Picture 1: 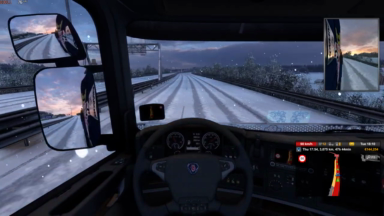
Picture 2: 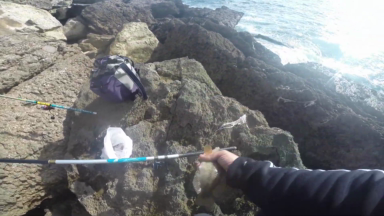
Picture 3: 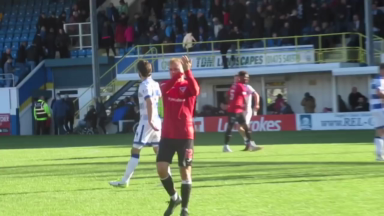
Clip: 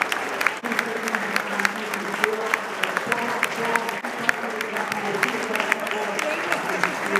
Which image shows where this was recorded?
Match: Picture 3